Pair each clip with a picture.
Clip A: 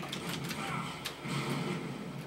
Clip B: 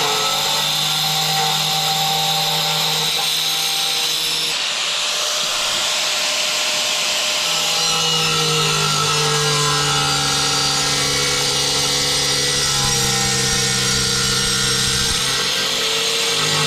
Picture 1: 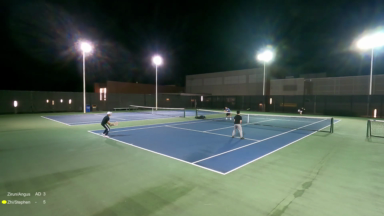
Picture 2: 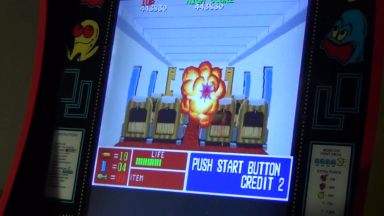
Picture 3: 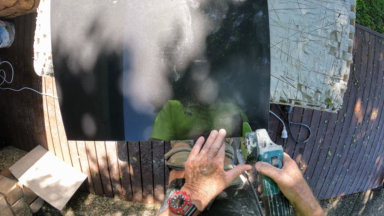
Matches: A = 2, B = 3